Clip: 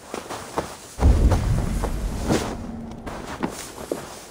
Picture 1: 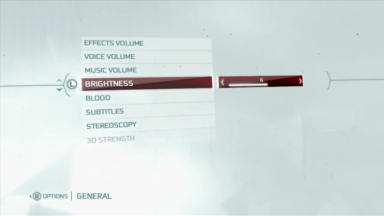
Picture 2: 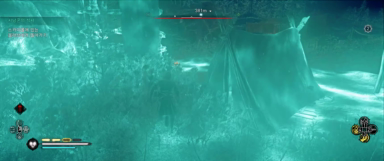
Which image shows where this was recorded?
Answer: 2